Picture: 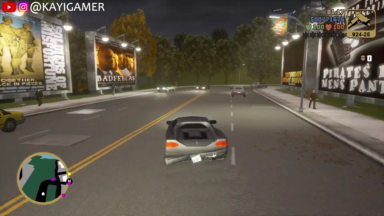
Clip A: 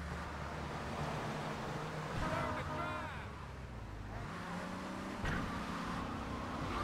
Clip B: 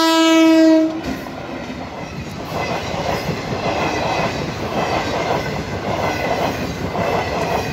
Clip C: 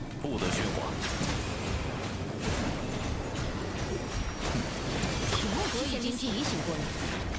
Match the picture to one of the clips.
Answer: A